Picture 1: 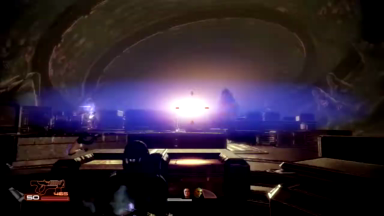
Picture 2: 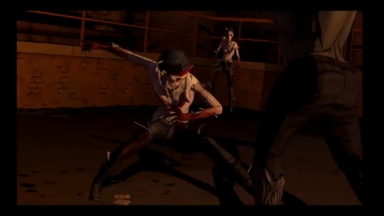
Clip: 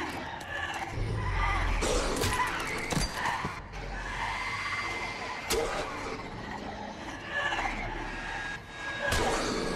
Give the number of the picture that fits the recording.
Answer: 2